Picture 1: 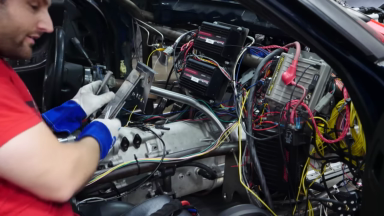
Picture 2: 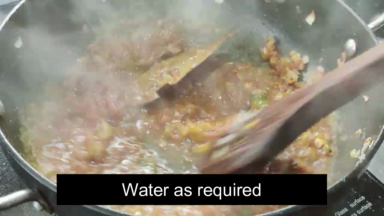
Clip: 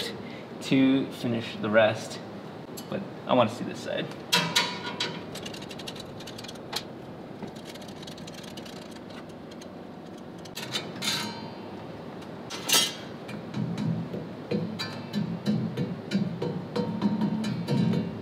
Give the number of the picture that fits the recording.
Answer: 1